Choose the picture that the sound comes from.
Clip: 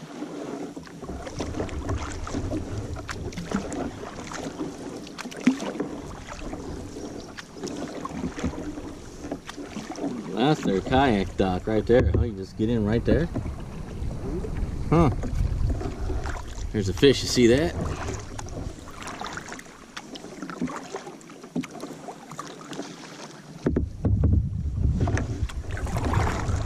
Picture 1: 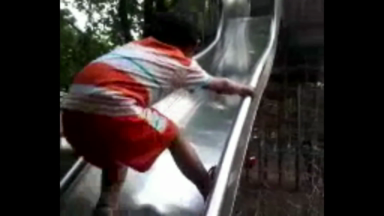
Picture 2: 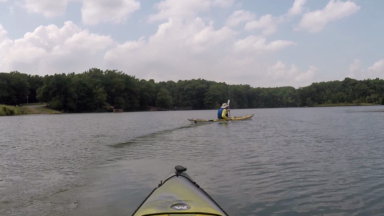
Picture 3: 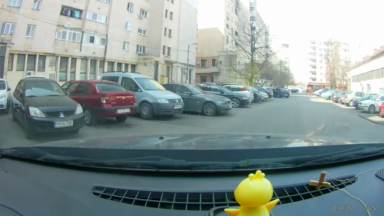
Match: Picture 2